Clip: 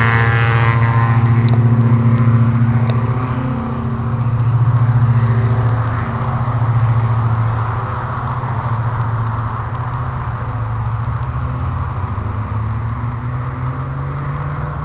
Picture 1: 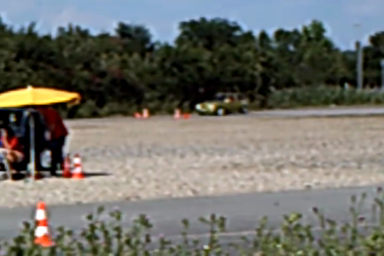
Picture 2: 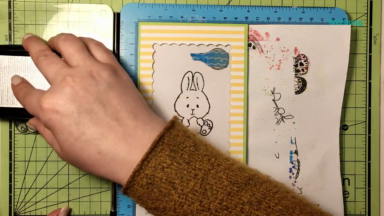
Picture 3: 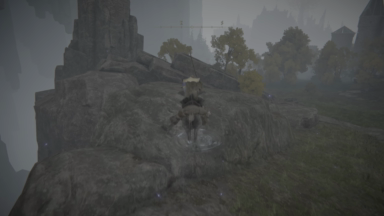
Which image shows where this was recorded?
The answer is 1